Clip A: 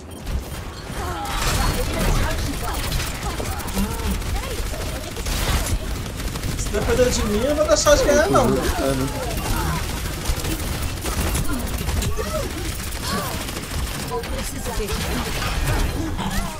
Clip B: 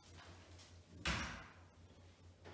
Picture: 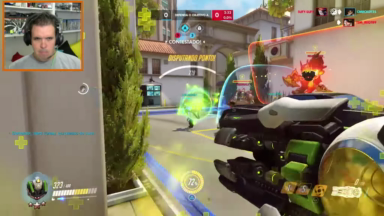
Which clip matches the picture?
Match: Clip A